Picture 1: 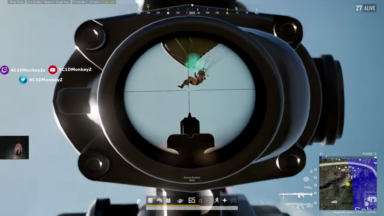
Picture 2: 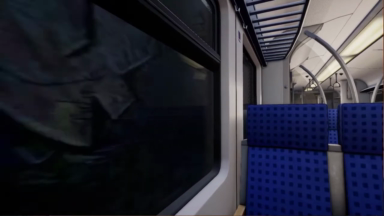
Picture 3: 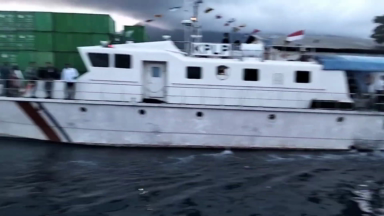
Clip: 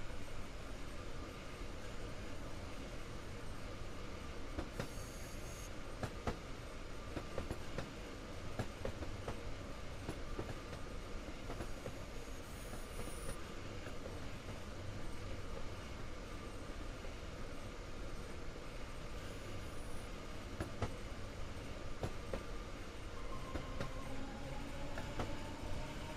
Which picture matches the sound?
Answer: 2